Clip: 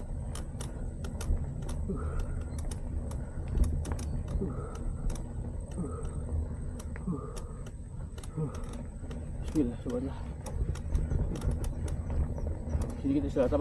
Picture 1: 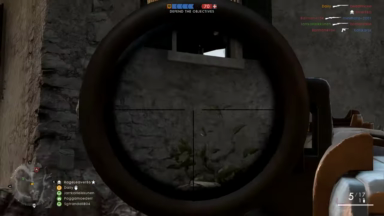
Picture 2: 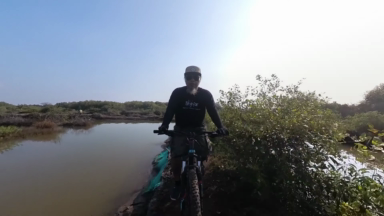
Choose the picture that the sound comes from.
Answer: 2